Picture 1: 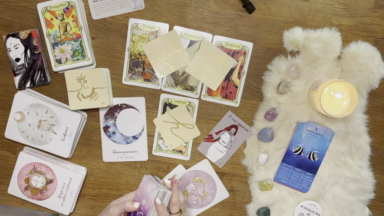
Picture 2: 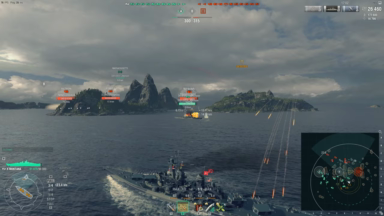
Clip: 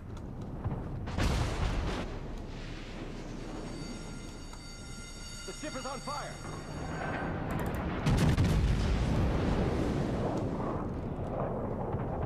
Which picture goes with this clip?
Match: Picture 2